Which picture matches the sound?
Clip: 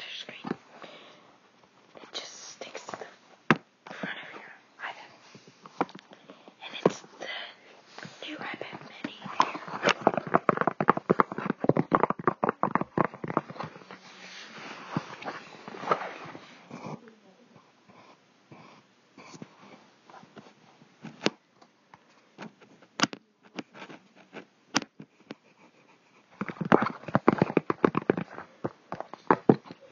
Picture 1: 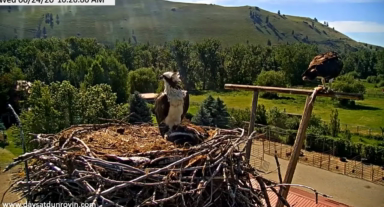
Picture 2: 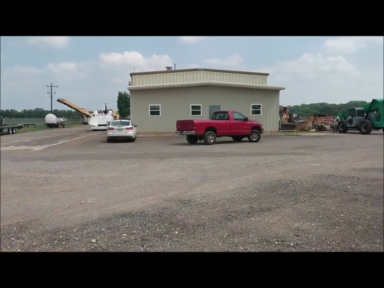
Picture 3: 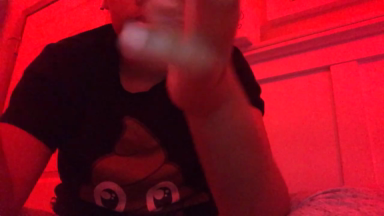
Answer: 3